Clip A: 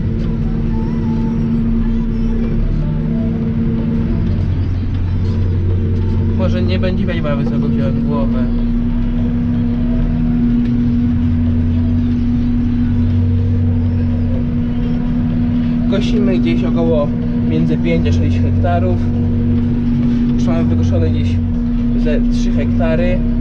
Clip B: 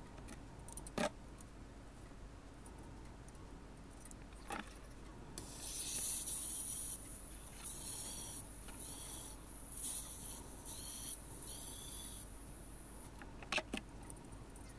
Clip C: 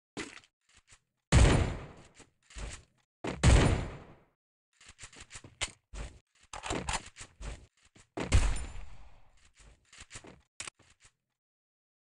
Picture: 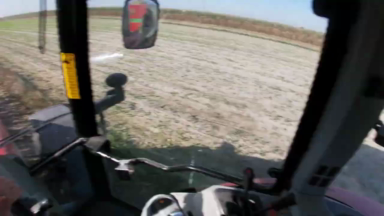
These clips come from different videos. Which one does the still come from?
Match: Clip A